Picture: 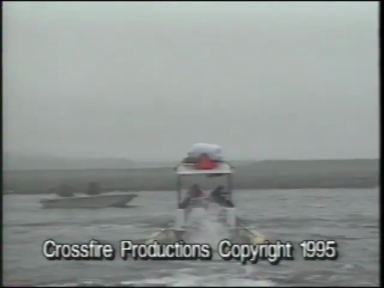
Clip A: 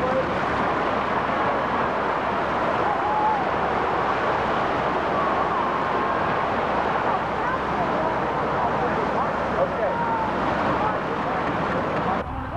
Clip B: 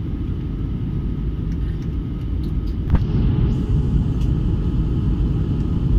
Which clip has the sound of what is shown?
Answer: A